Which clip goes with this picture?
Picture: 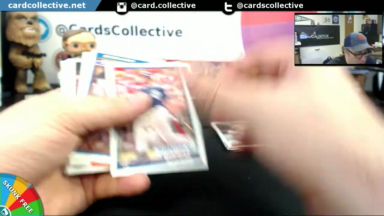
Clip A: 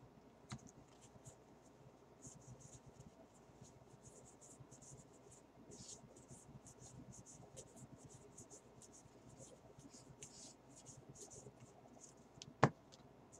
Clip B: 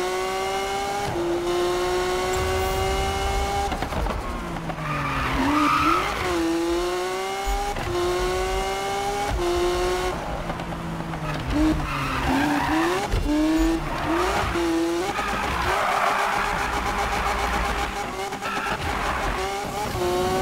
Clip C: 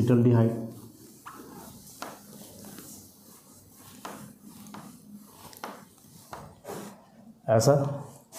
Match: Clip A